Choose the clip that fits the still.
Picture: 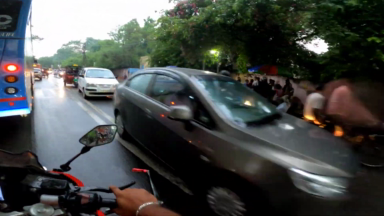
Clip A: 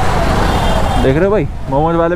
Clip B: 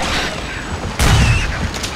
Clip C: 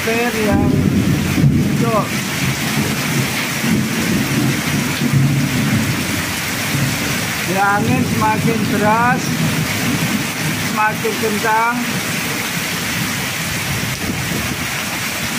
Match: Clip A